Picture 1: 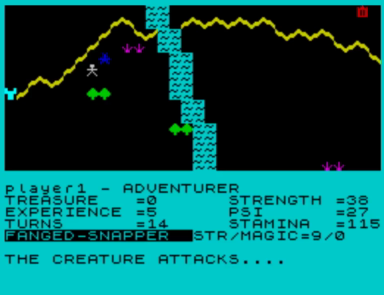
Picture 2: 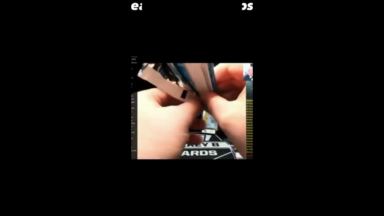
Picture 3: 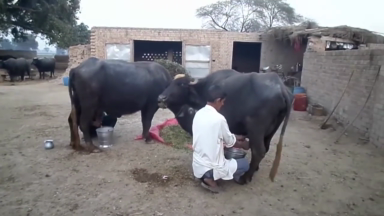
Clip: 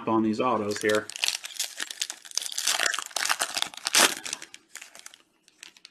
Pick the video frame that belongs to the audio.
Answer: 2